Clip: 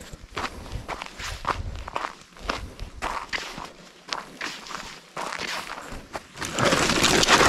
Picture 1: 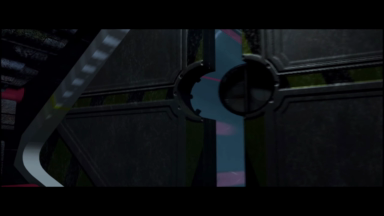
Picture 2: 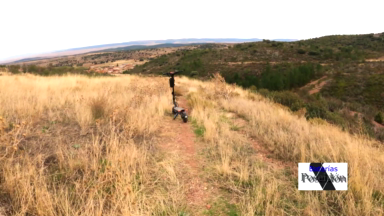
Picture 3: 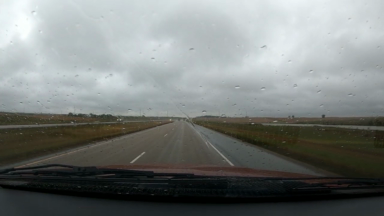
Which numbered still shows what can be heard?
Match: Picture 2